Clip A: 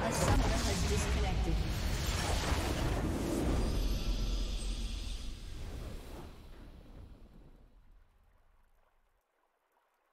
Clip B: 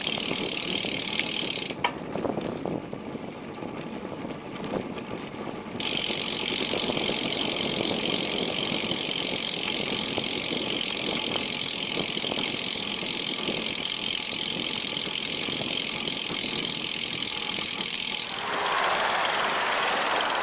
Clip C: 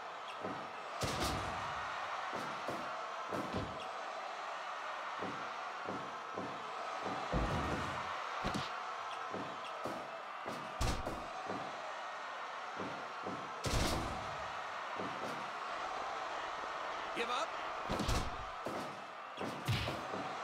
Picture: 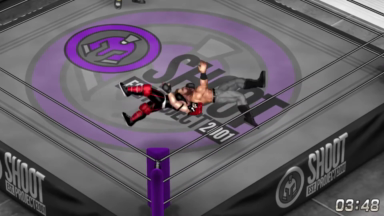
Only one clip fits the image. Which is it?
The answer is C